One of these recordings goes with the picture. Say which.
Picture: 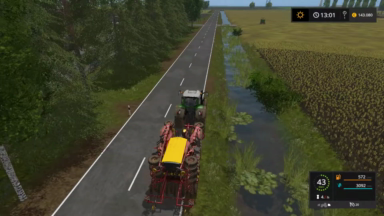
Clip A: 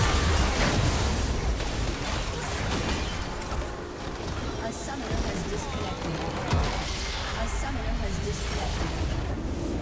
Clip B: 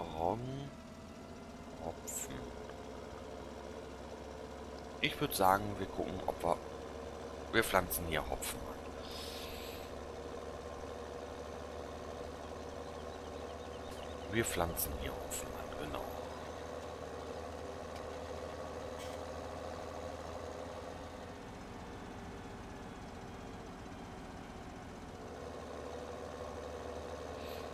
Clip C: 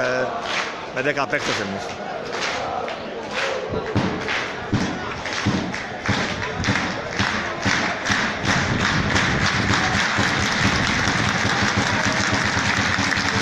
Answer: B